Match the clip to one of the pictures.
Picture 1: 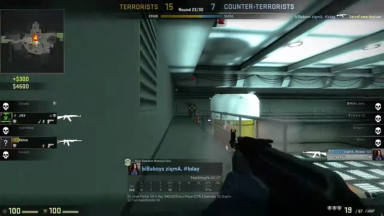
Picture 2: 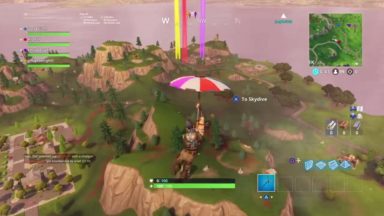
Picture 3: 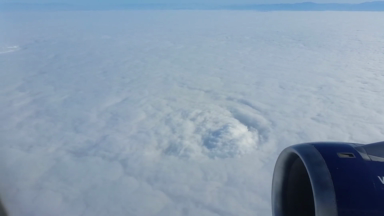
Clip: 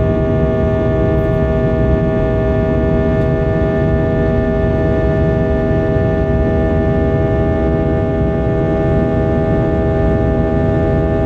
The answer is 3